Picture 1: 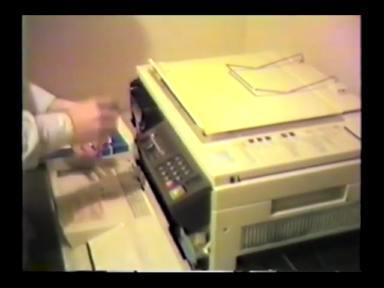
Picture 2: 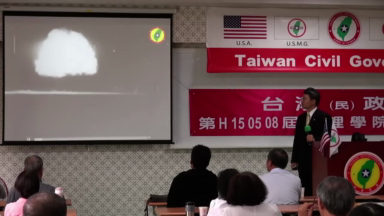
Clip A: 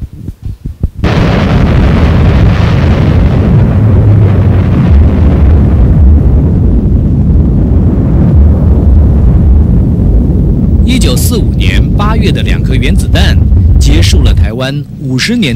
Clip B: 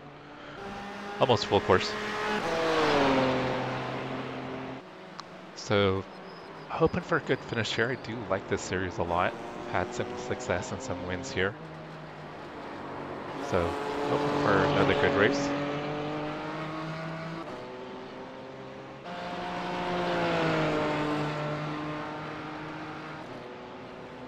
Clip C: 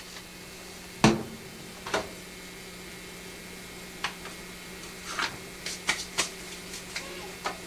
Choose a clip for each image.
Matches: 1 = C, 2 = A